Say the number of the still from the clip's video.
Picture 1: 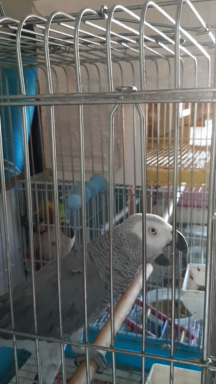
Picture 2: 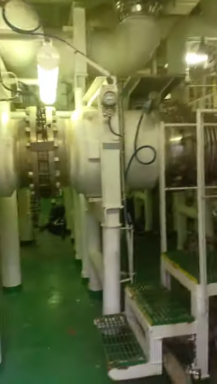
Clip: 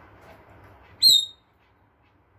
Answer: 1